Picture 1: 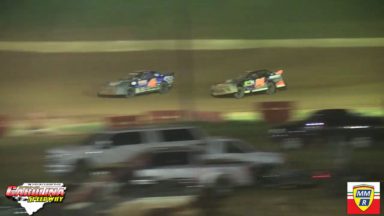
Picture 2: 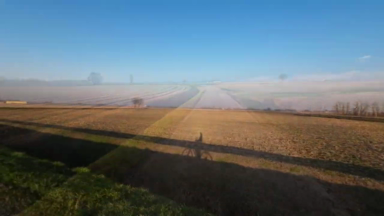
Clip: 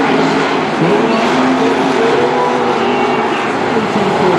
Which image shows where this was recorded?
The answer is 1